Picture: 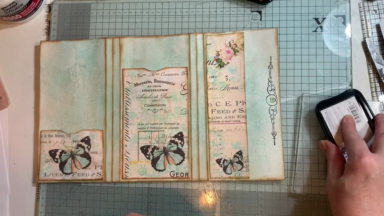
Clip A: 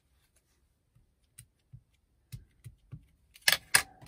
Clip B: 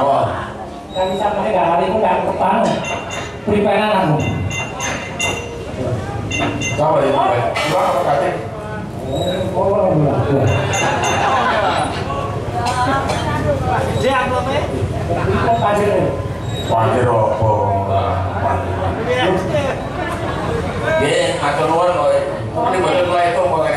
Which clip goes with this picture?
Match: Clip A